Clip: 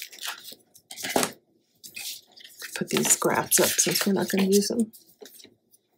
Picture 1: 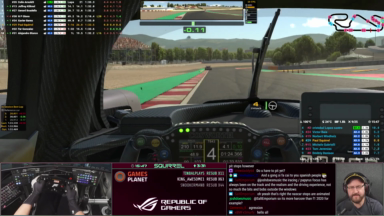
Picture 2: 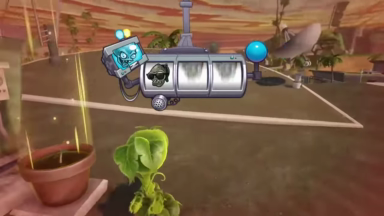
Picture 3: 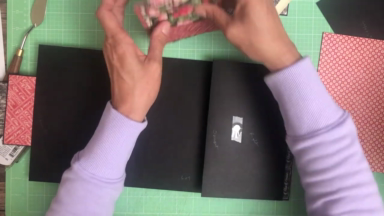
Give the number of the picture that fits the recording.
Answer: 3